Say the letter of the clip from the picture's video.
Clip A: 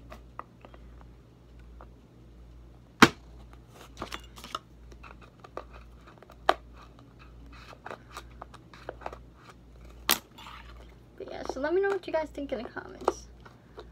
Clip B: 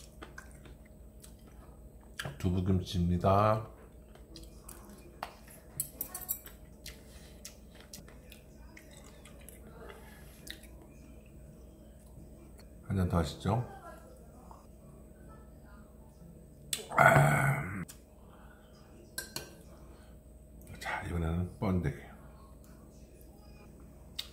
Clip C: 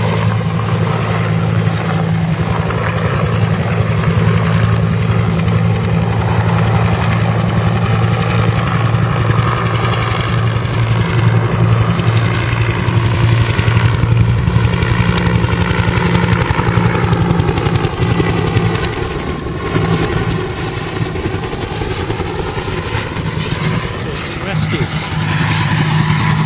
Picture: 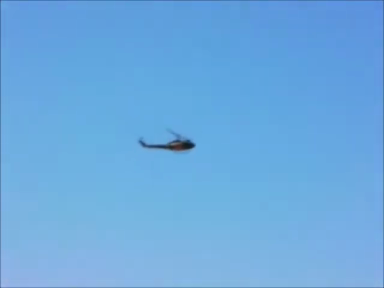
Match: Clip C